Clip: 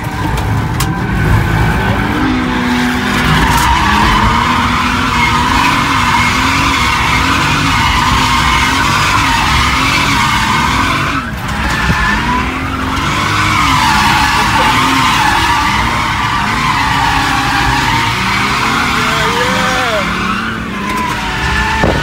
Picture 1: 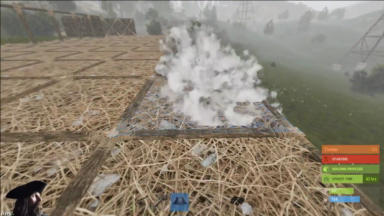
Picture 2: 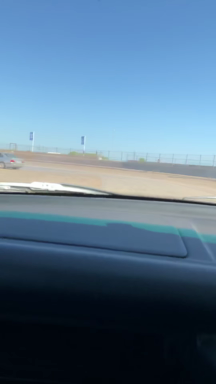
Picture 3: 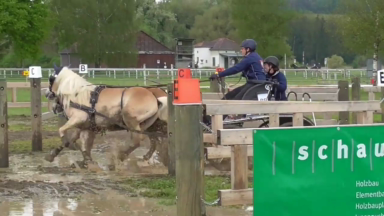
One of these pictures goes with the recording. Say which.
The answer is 2